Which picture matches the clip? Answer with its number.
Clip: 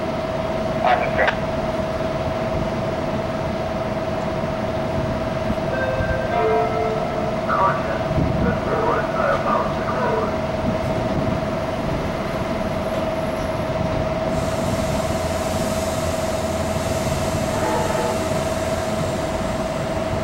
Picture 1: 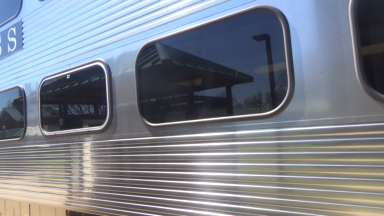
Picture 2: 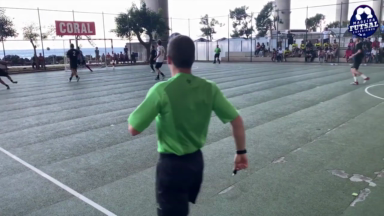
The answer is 1